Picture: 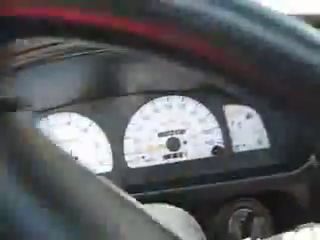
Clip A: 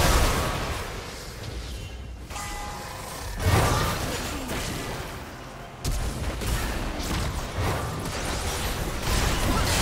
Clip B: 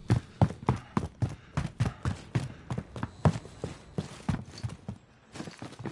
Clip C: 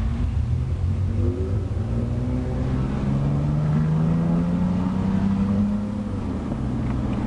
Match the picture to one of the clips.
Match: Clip C